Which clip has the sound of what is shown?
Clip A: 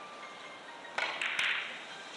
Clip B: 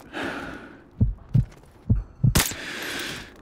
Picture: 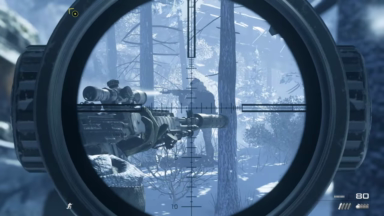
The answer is B